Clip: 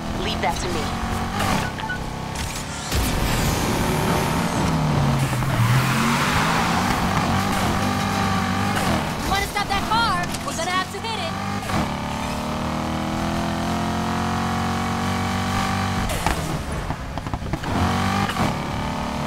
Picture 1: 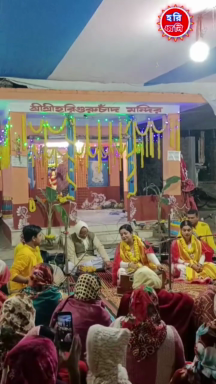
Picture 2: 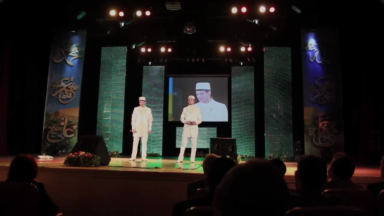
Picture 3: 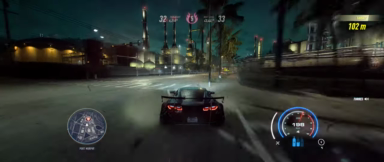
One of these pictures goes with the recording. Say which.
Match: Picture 3